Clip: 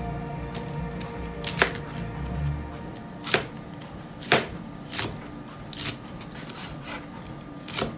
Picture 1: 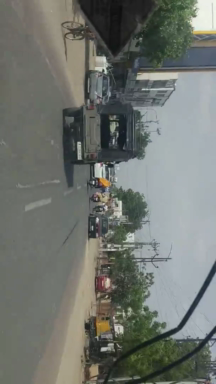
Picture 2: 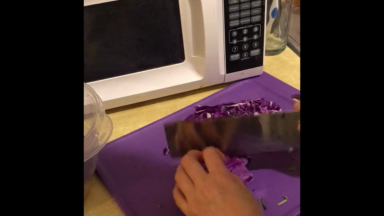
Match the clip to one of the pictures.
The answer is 2